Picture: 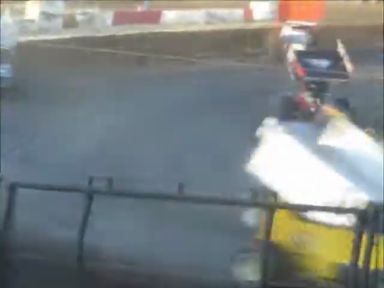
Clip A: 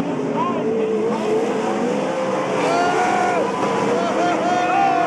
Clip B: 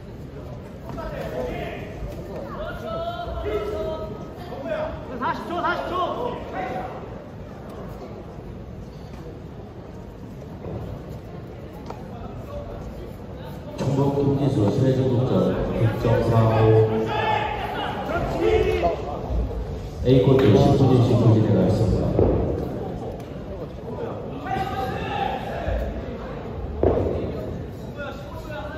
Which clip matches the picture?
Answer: A